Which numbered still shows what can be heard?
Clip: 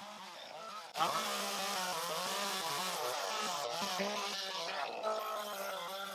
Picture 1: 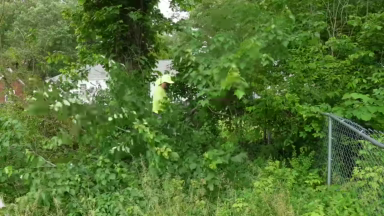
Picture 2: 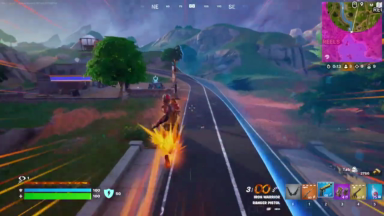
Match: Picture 1